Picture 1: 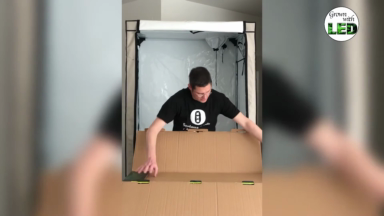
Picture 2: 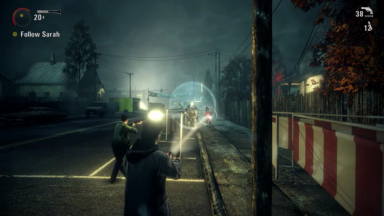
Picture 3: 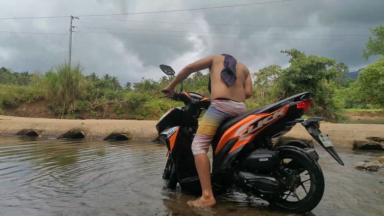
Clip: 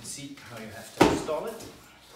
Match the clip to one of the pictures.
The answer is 1